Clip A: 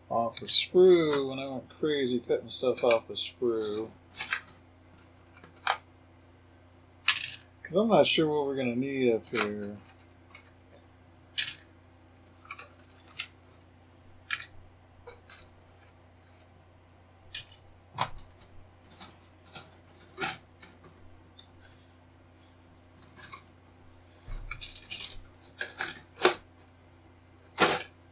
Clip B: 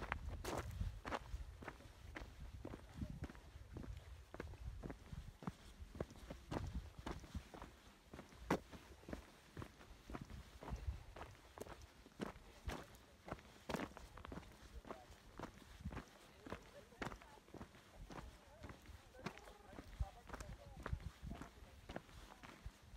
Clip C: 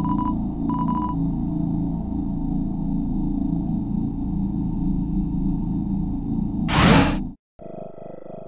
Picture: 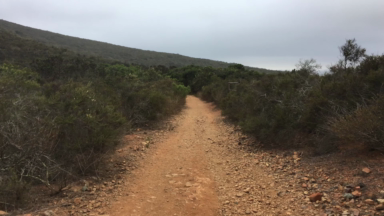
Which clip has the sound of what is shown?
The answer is B